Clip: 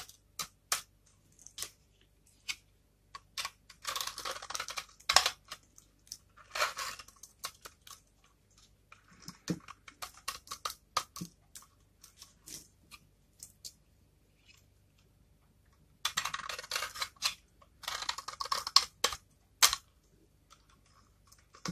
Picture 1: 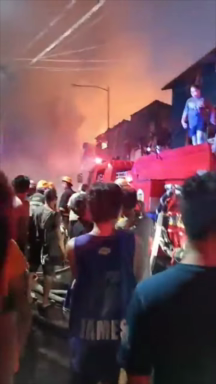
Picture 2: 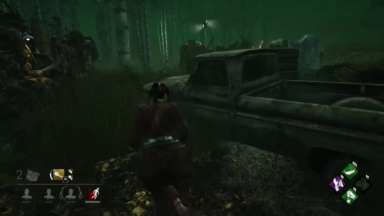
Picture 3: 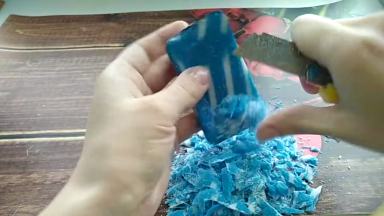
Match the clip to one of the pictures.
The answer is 3